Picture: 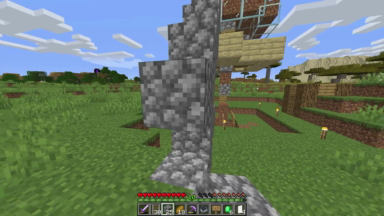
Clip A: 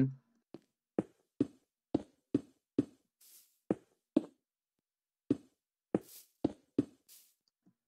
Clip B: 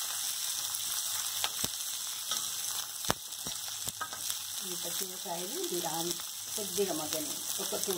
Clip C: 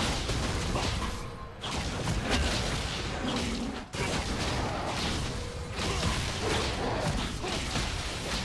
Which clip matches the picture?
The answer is A